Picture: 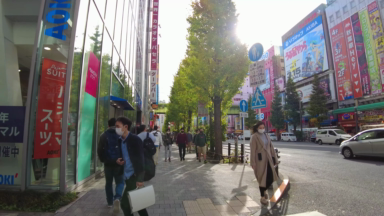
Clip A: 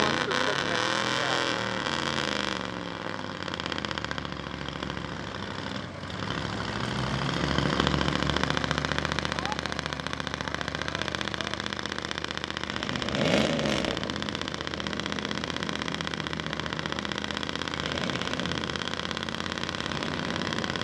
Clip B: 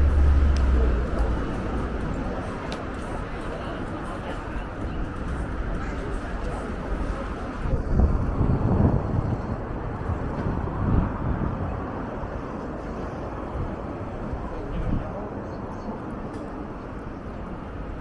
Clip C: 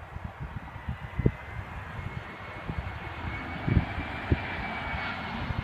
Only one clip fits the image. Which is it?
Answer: B